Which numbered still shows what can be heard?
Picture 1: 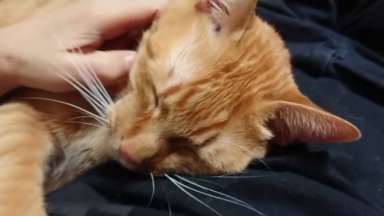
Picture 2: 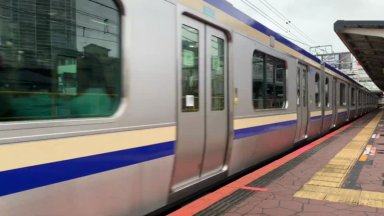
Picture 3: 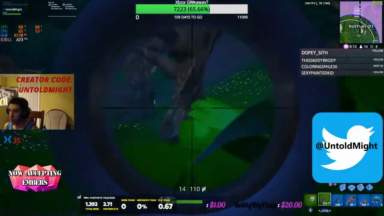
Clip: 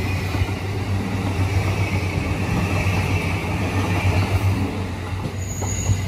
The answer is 2